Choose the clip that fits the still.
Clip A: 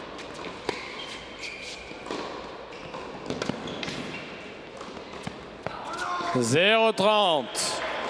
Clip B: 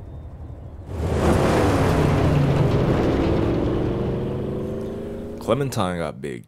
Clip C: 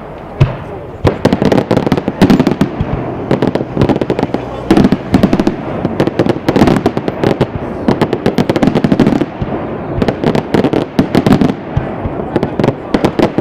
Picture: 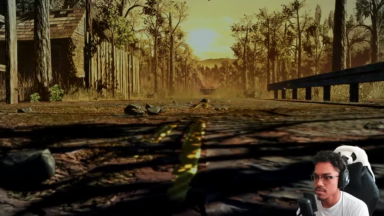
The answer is B